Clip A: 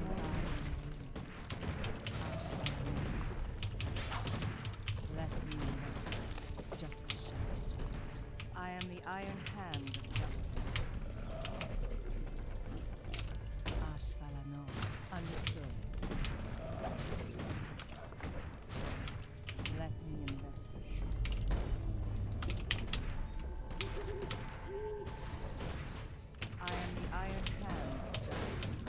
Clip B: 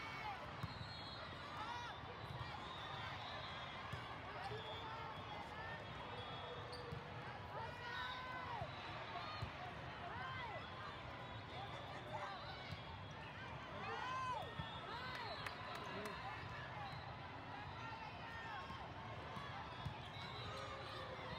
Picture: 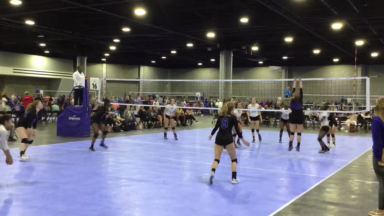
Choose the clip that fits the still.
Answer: B